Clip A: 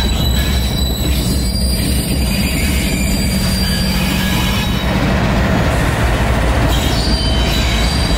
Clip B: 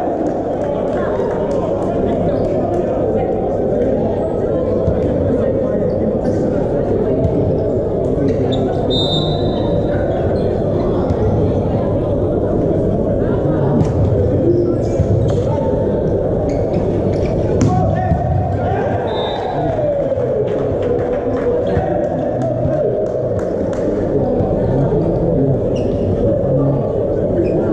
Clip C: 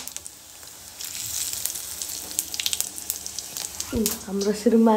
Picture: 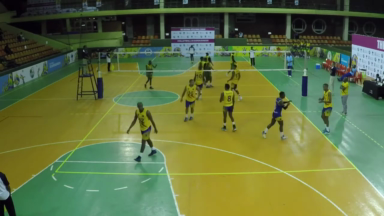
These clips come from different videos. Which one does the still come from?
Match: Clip B